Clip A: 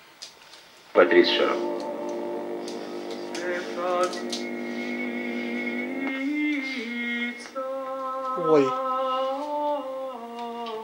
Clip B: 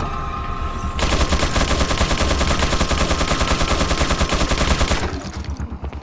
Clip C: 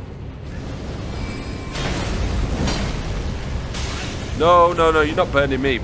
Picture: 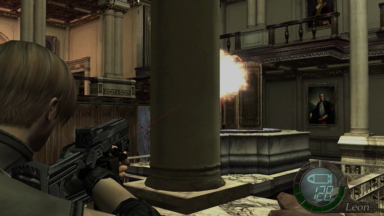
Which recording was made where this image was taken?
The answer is B